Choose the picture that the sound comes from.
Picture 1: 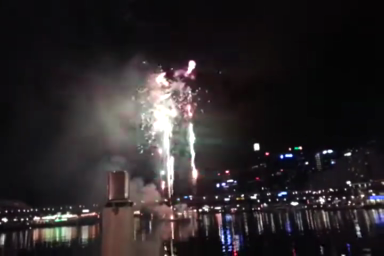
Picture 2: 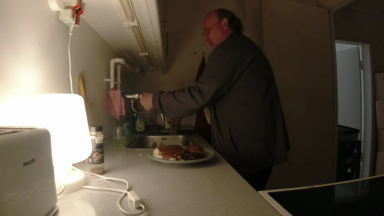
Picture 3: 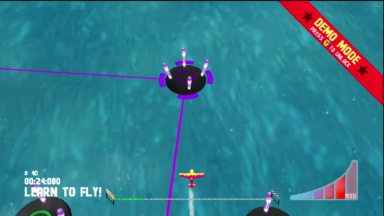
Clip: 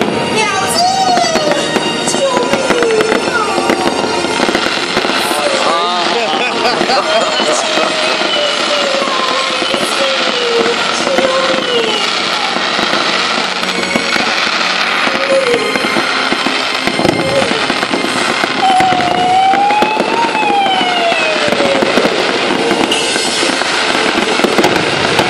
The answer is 1